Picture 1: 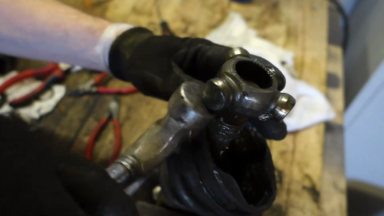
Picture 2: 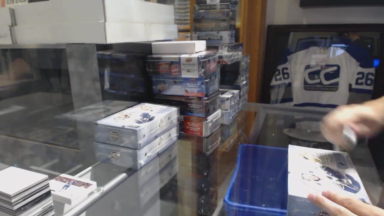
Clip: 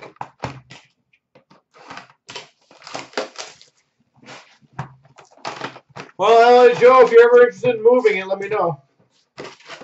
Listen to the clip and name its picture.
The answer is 2